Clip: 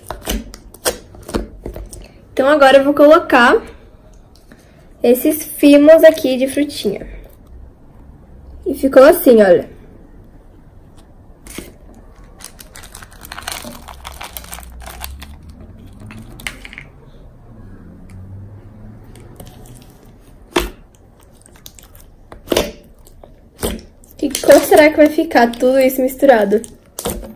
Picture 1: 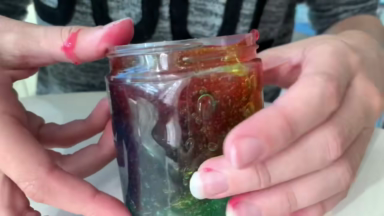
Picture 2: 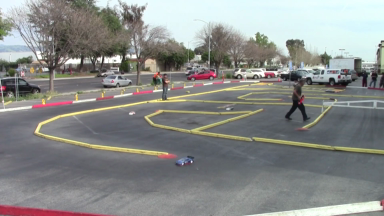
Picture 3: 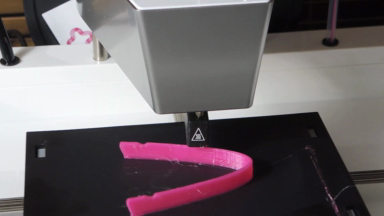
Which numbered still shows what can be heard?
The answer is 1